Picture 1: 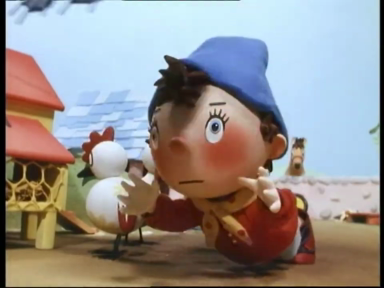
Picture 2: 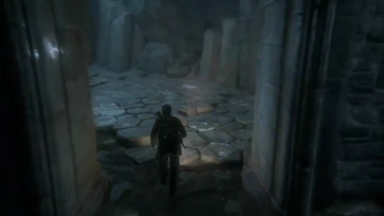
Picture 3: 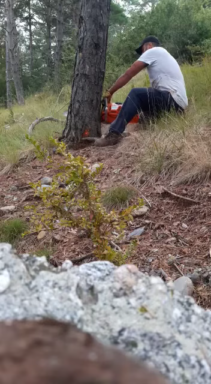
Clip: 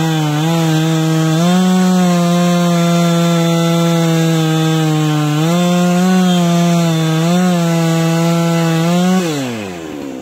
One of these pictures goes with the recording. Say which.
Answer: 3